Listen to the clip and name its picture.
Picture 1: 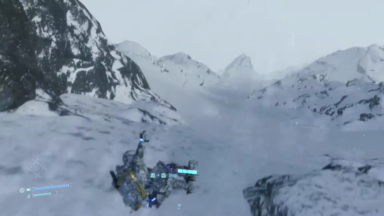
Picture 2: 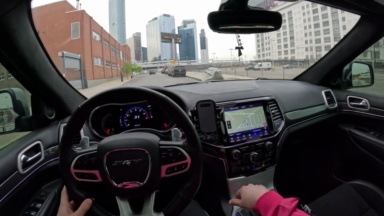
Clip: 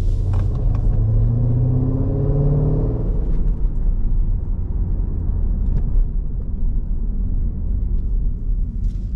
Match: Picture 2